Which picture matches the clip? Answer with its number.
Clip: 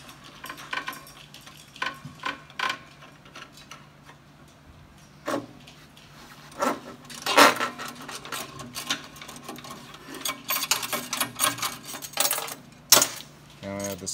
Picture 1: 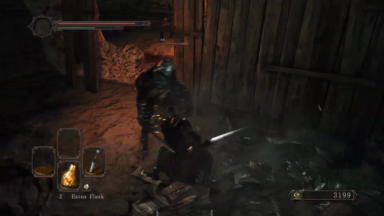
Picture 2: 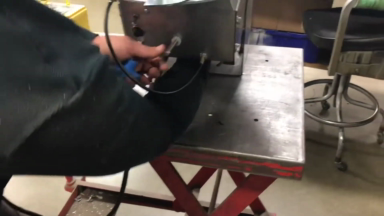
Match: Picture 2